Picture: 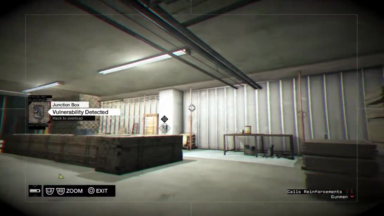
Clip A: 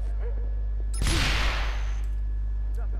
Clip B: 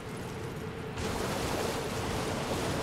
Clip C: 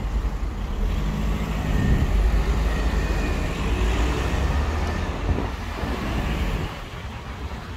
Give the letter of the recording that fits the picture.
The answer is A